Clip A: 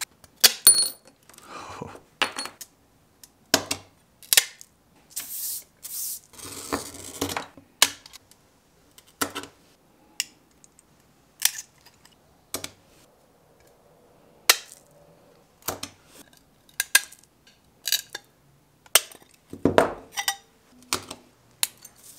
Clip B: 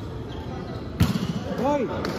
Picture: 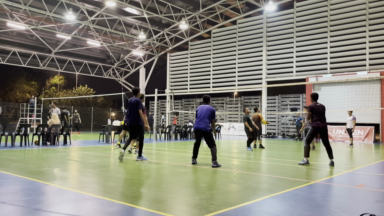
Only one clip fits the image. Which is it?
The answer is B